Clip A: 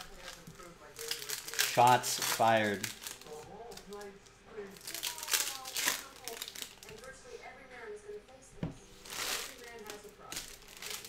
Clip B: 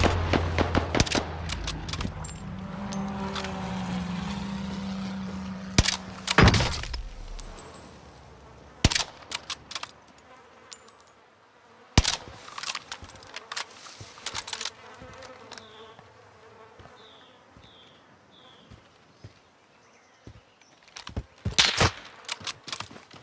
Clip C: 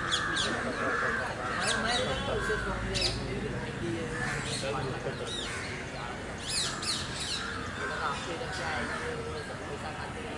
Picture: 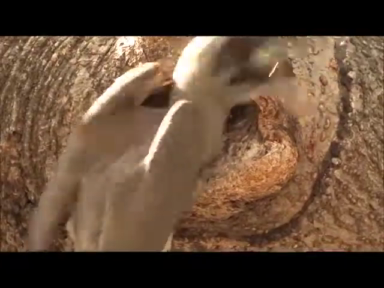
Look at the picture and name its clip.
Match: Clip C